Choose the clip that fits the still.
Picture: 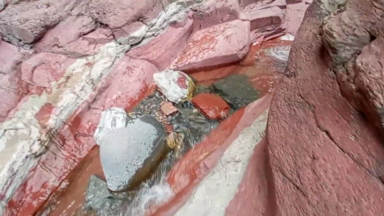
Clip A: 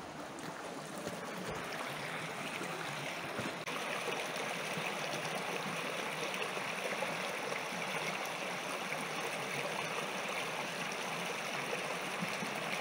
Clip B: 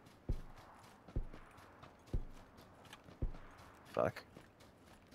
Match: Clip A